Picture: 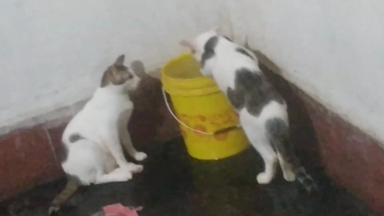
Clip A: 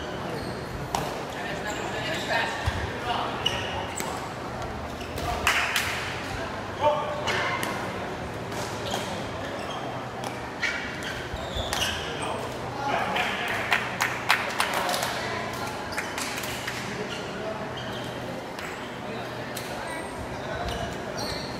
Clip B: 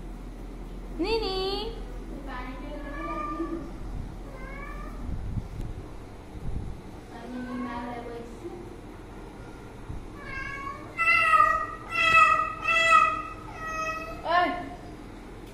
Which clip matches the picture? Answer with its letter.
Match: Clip B